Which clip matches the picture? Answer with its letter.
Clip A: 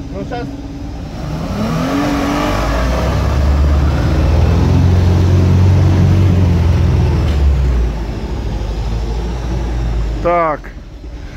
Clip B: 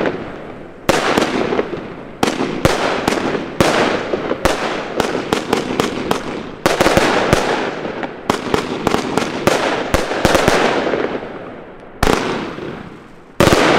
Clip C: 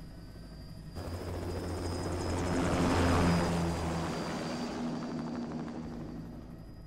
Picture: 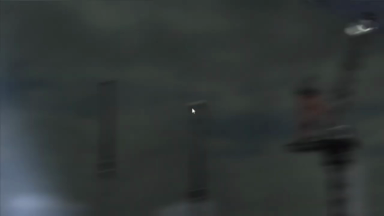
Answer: C